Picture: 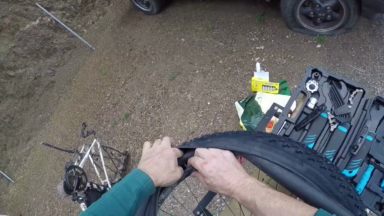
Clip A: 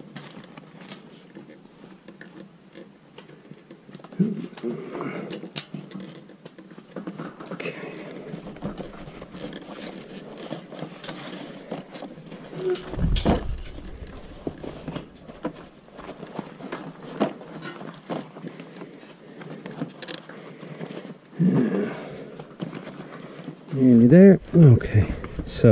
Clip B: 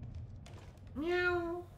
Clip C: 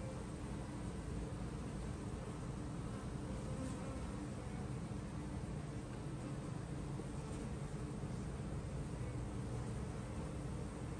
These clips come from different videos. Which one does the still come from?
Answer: A